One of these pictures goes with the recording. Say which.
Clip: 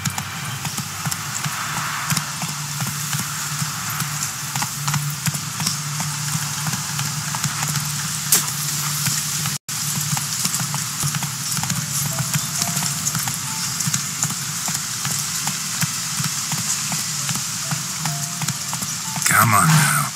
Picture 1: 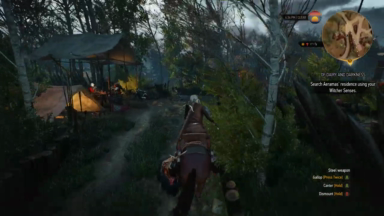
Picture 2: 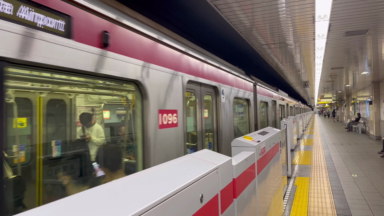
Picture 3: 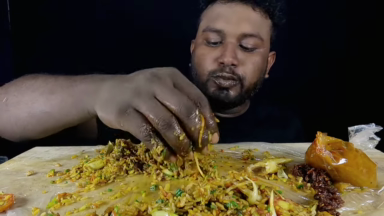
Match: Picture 1